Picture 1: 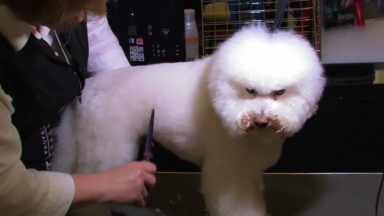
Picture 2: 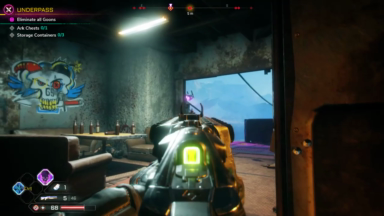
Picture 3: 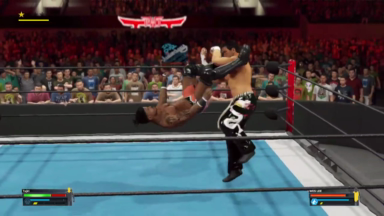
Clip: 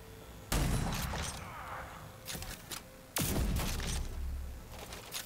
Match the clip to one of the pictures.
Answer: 2